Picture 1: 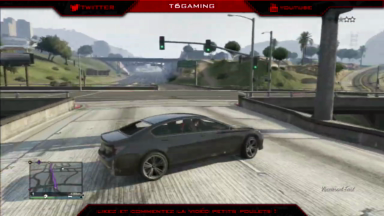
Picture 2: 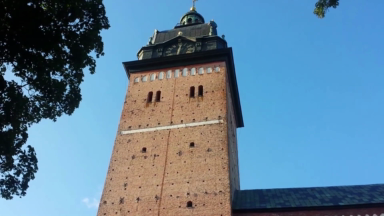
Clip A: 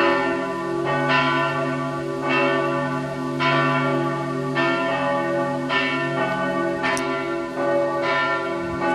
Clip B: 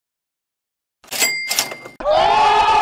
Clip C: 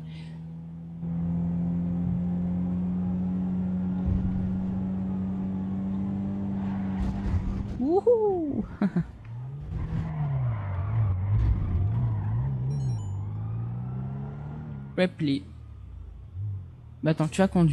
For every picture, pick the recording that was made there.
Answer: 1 C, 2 A